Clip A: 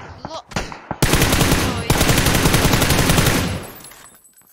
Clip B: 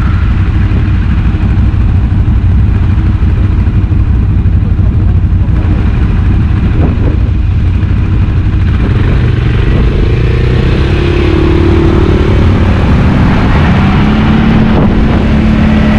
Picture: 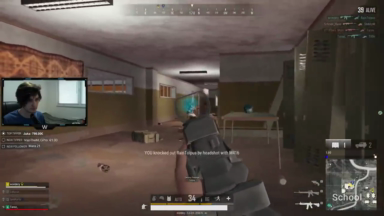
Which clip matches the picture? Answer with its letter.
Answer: A